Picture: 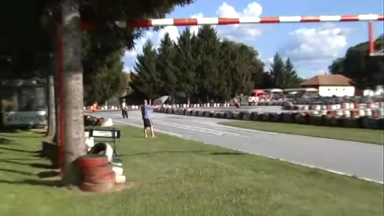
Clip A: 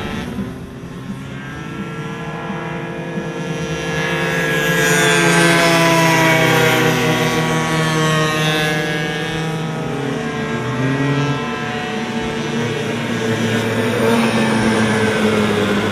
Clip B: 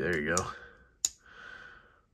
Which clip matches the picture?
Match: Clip A